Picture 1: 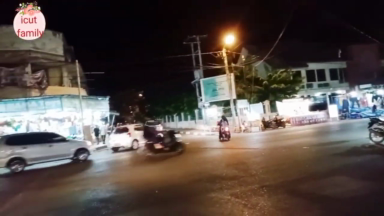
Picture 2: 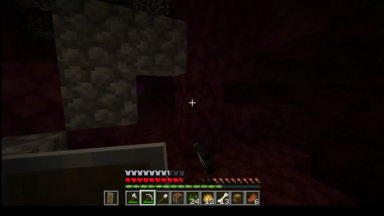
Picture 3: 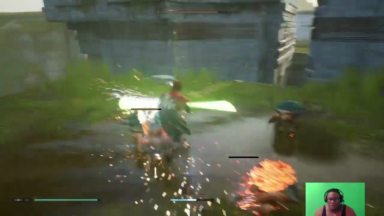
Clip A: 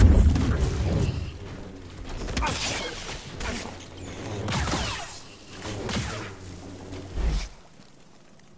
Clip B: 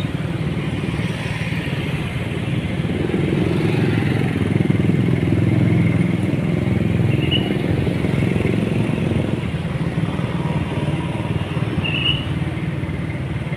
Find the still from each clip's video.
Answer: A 3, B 1